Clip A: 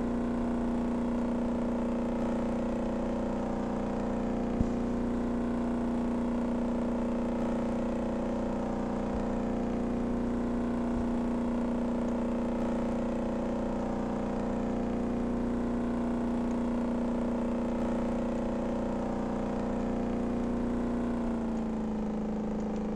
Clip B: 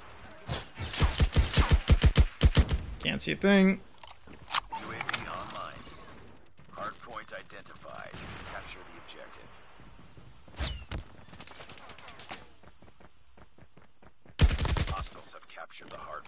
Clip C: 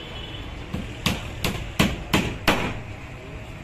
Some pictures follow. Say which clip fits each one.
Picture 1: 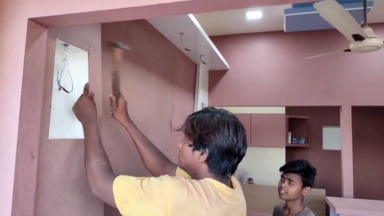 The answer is C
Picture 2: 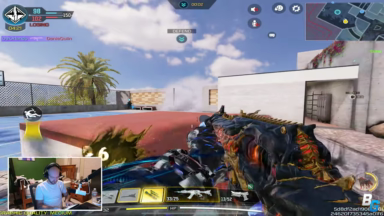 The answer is B